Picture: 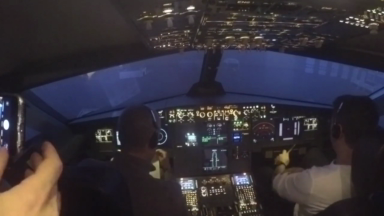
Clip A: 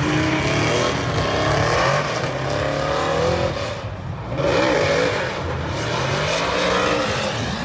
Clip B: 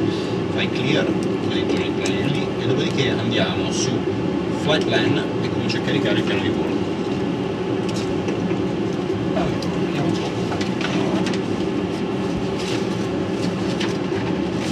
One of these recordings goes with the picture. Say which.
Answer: B